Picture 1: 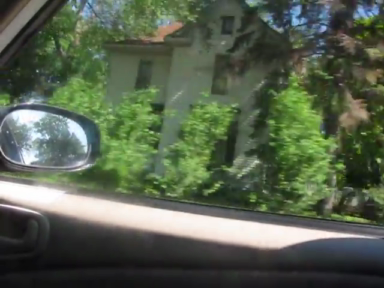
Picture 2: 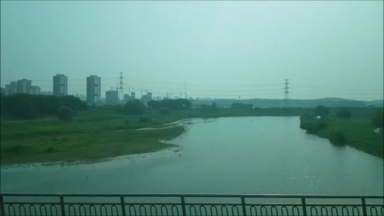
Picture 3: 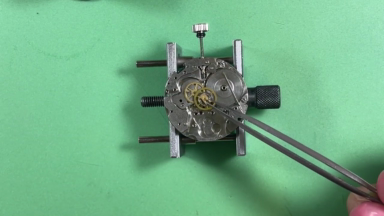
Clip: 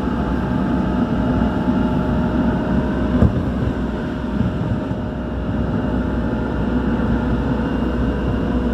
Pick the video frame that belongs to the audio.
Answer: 2